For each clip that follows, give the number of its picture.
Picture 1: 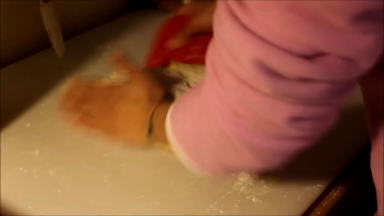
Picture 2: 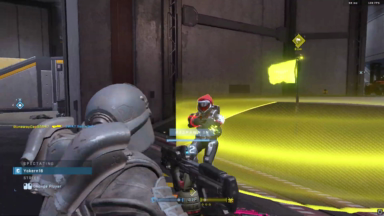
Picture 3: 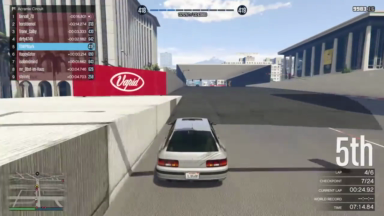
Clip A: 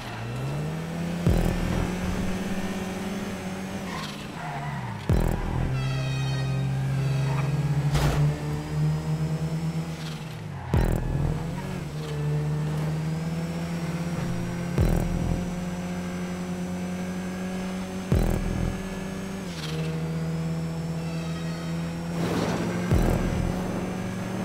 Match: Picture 3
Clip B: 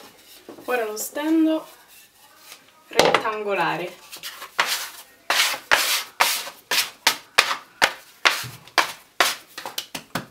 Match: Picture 1